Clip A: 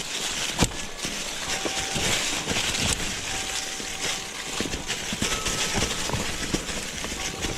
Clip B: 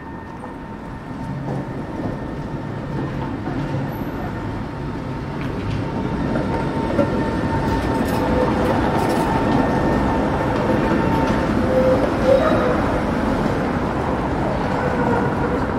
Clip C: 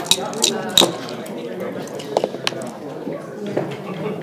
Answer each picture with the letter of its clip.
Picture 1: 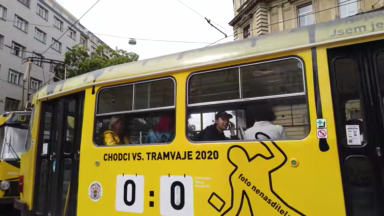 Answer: B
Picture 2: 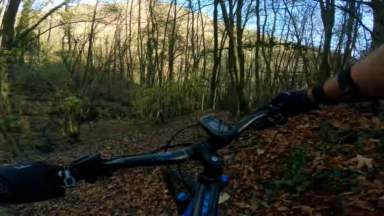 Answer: A